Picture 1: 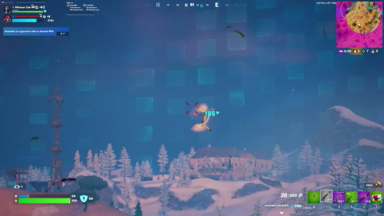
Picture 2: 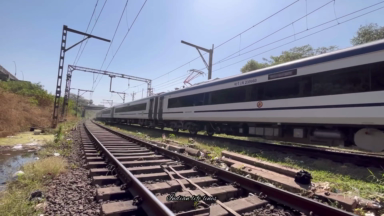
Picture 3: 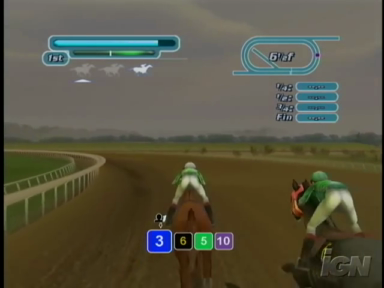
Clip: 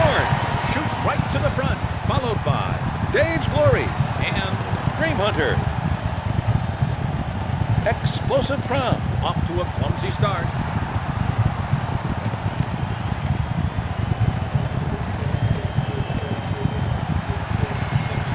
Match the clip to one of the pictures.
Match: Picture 3